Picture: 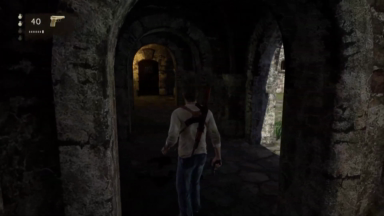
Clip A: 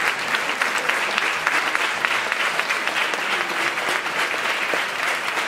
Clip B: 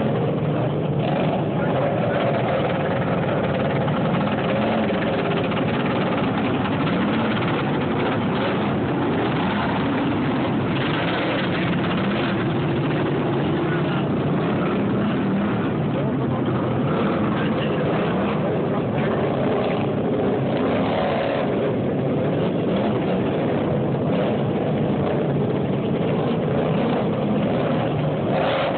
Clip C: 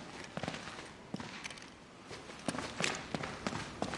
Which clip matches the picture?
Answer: C